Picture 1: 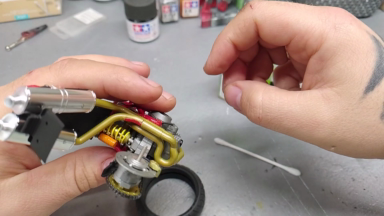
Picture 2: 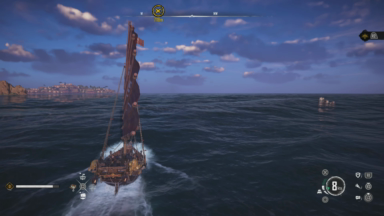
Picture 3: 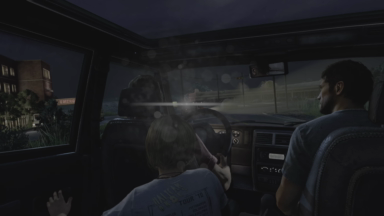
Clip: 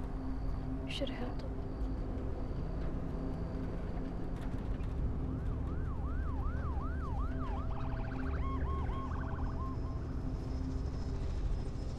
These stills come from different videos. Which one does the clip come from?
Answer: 3